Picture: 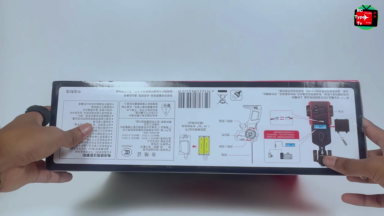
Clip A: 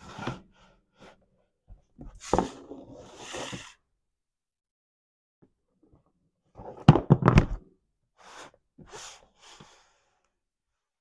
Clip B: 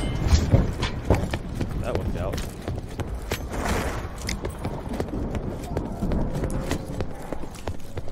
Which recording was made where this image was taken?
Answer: A